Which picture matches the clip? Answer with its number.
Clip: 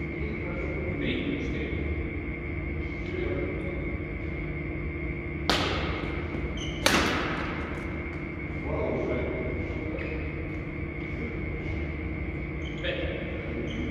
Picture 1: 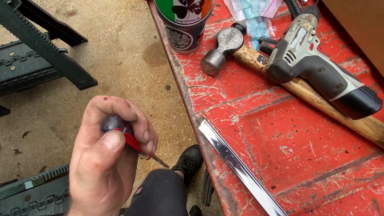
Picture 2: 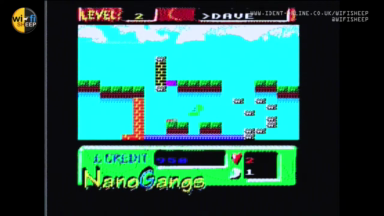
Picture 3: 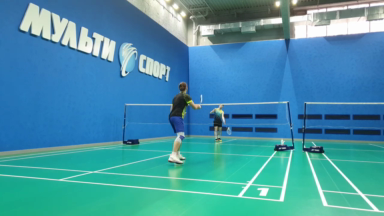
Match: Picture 3